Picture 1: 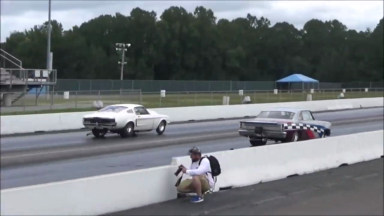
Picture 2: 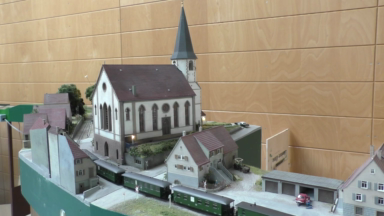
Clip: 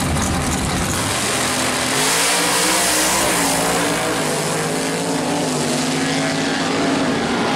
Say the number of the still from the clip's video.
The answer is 1